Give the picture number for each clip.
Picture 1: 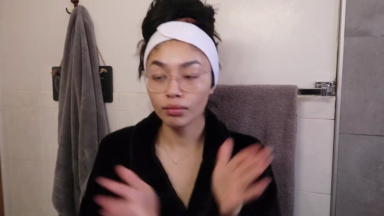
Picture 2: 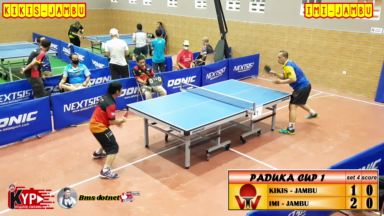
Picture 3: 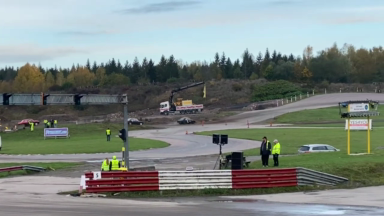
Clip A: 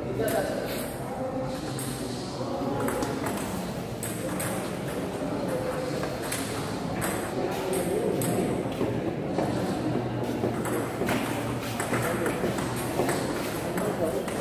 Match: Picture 2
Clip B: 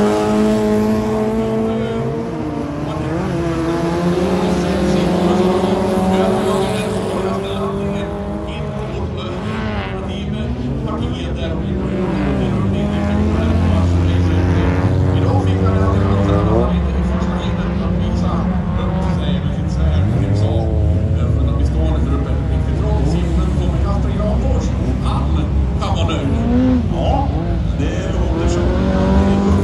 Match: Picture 3